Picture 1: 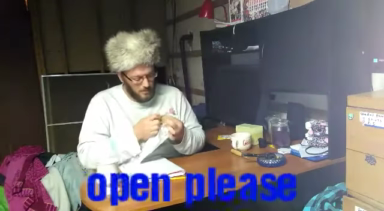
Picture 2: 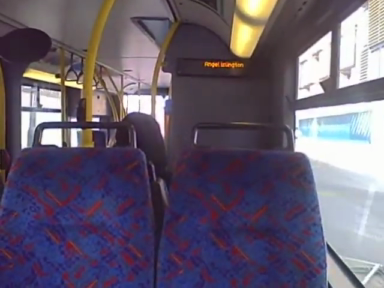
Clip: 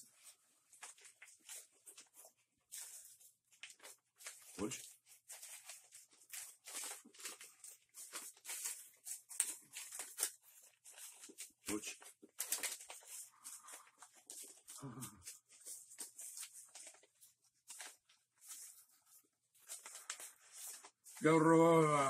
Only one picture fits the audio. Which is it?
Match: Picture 1